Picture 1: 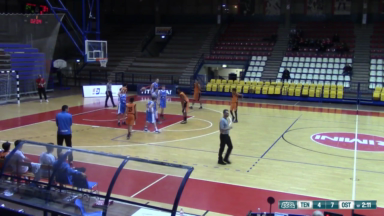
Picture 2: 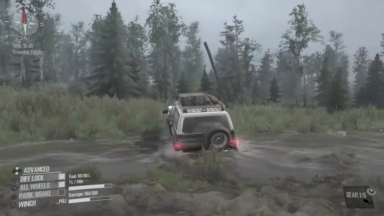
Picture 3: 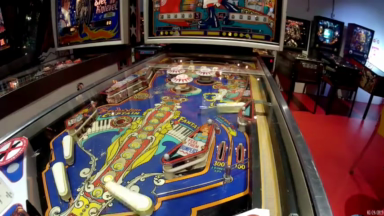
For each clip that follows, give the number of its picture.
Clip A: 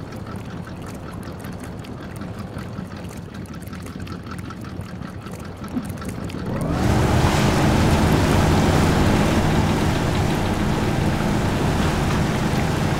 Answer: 2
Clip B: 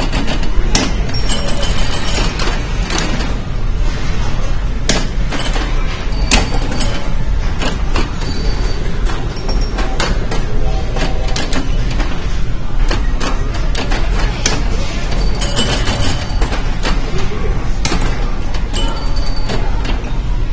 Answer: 3